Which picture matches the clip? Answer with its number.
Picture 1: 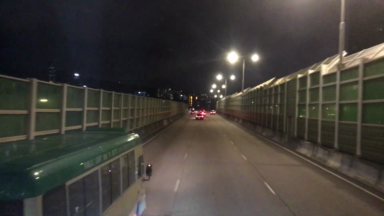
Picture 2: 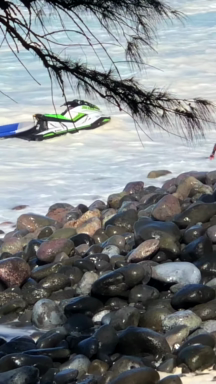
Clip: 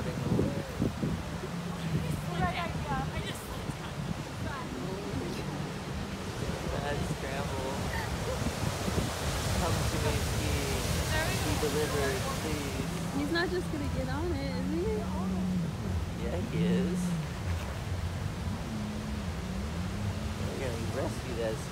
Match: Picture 2